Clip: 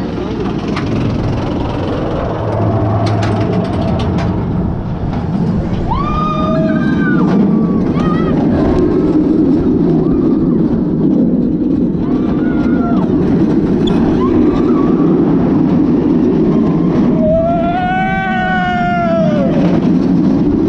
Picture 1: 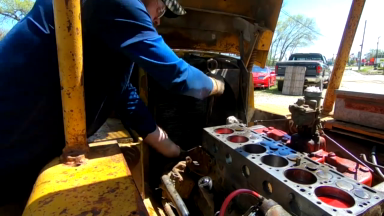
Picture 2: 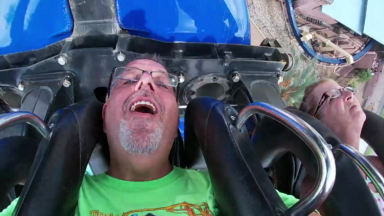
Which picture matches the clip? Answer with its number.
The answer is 2